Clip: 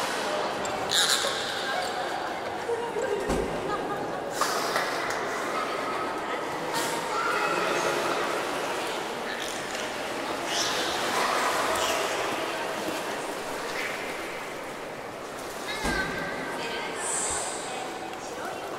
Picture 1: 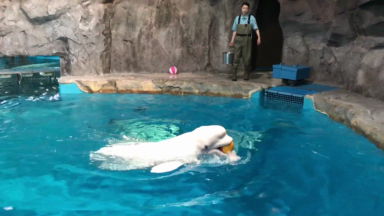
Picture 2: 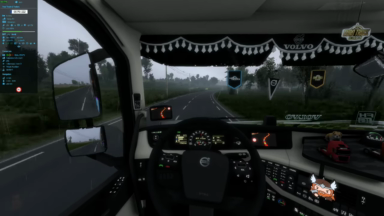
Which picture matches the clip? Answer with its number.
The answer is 1